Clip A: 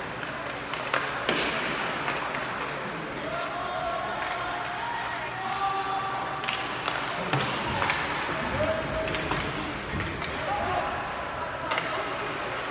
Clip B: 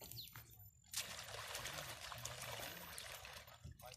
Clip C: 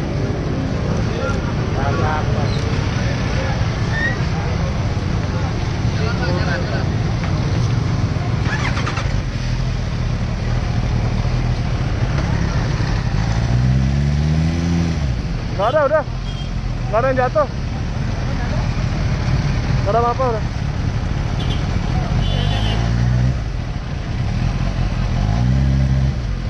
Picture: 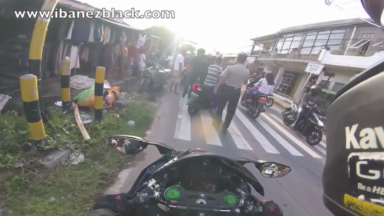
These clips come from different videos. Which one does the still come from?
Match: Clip C